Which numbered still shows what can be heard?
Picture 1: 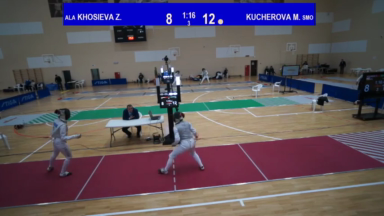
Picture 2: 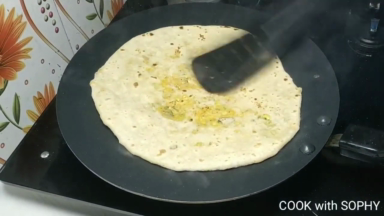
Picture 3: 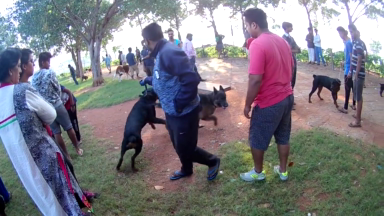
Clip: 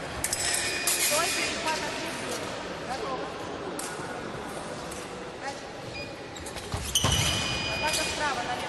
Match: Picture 1